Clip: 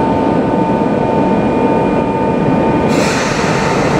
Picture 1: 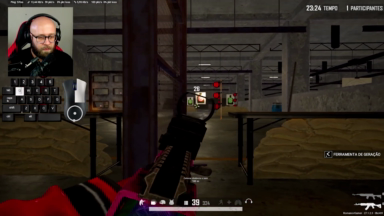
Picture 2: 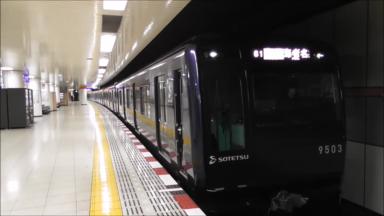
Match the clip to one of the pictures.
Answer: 2